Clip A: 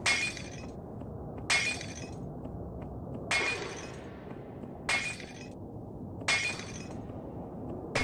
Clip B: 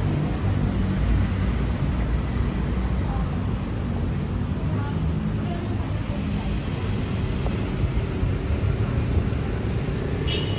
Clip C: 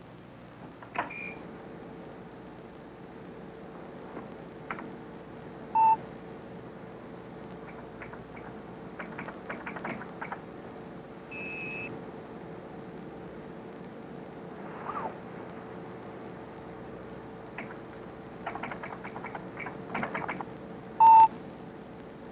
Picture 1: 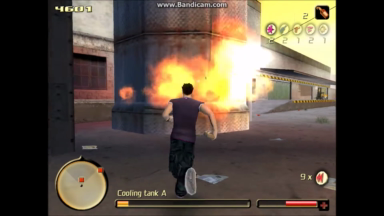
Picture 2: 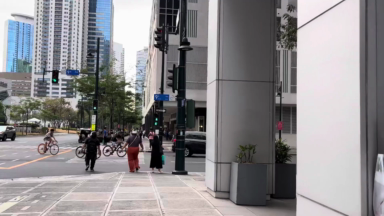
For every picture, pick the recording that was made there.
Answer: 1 A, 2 B